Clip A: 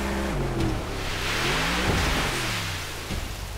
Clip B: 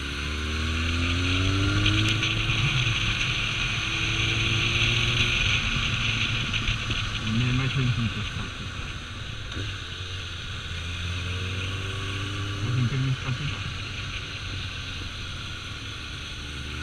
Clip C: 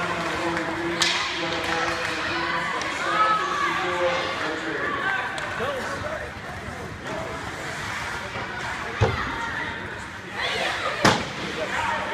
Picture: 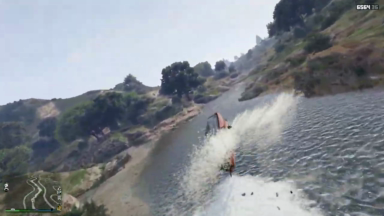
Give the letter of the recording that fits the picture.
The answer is A